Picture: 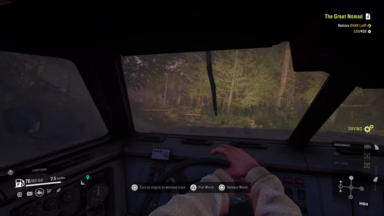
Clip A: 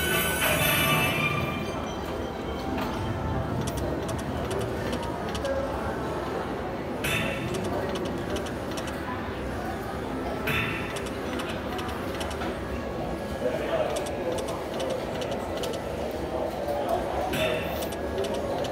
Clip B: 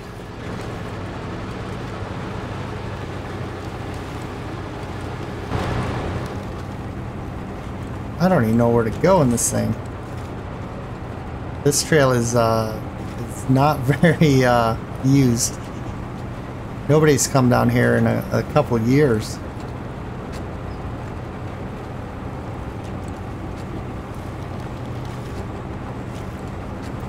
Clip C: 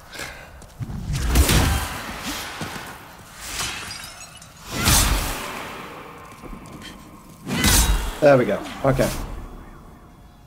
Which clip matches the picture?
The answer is B